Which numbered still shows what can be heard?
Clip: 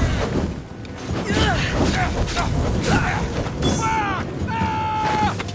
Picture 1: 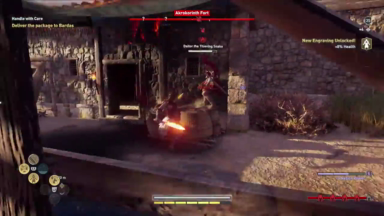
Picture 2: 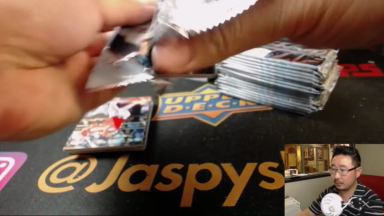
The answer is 1